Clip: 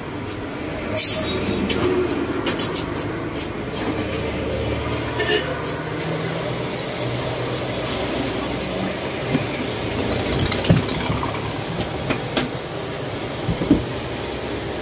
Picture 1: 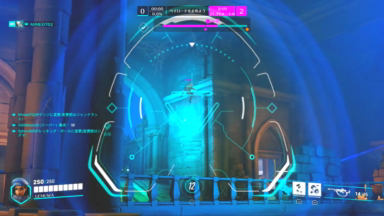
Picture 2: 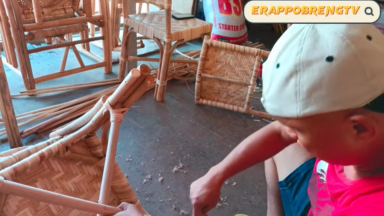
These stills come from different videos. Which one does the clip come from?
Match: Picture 2